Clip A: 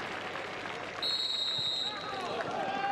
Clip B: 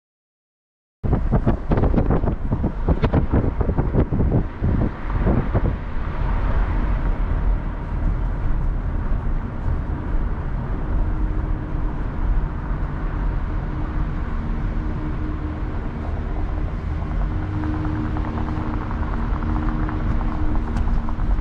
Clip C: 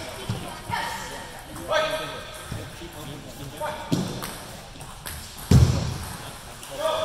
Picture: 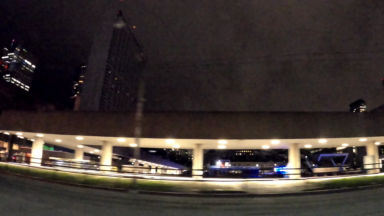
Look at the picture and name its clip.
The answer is B